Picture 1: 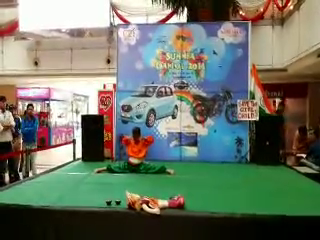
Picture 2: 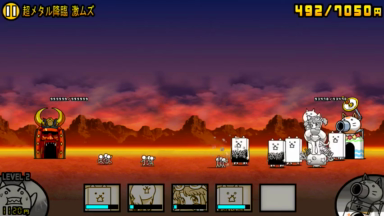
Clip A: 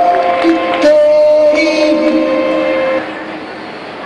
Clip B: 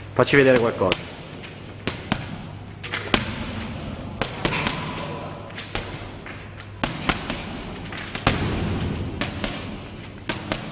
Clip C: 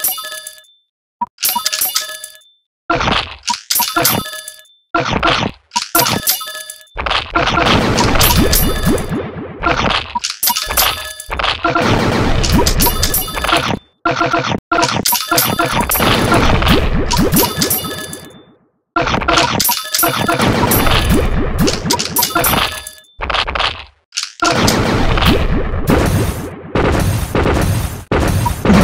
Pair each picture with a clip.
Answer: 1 A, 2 C